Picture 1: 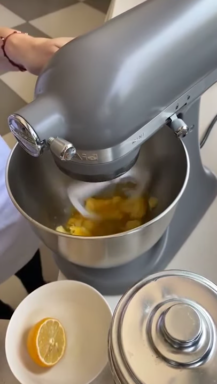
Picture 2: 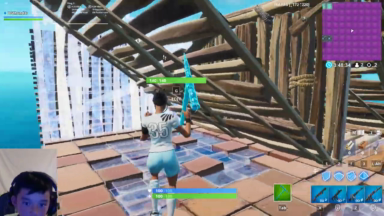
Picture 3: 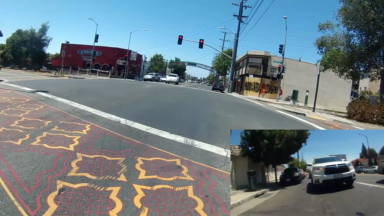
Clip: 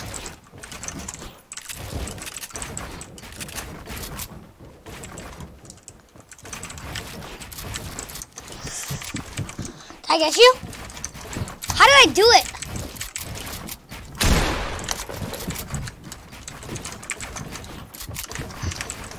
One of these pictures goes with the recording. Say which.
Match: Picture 2